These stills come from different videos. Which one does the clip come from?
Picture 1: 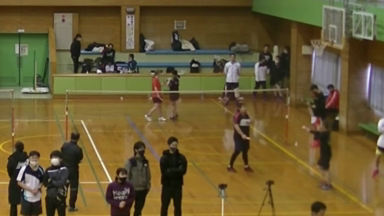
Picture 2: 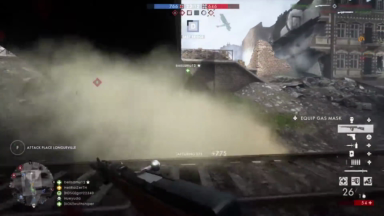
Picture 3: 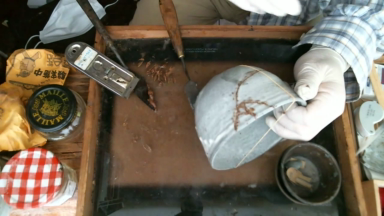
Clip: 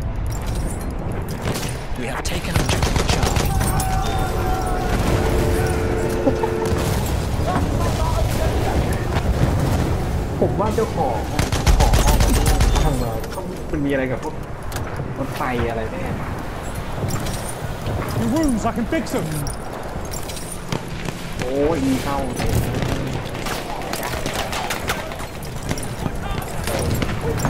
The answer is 2